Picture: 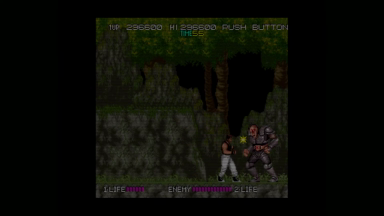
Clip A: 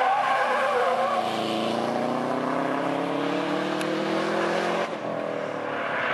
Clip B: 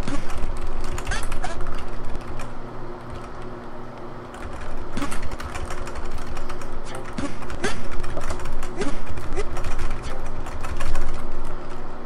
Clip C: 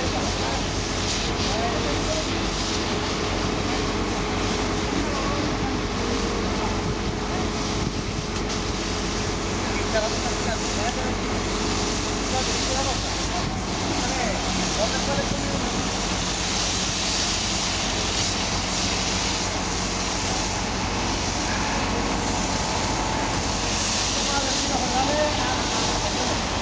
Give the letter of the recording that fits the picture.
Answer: B